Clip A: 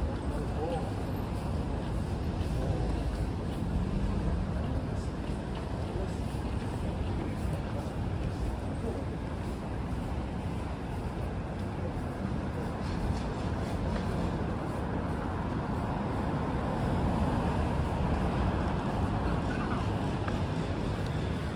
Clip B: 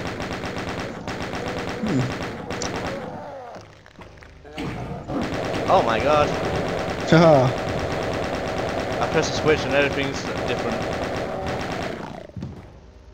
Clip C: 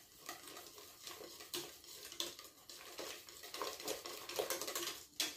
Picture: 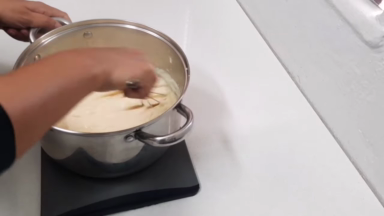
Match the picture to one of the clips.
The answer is C